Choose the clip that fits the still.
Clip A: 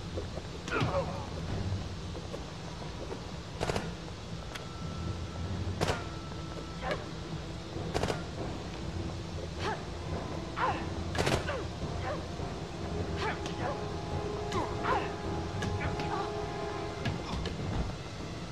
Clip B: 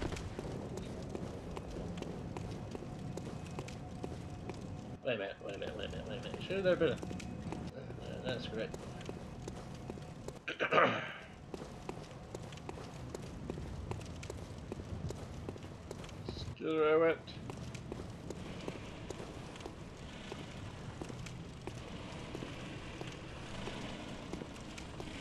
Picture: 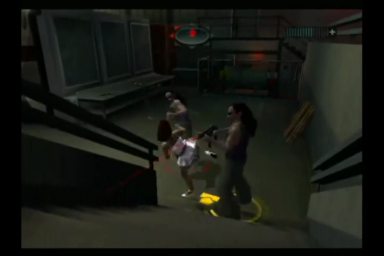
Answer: A